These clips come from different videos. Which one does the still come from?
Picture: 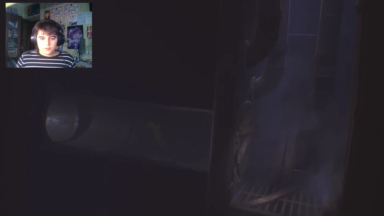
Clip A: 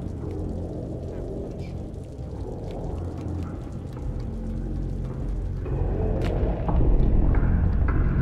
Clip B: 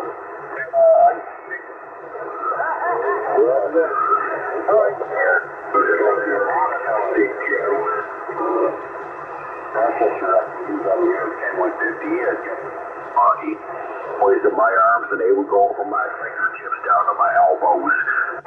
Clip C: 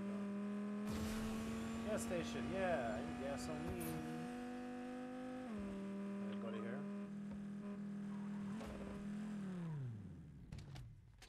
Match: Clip A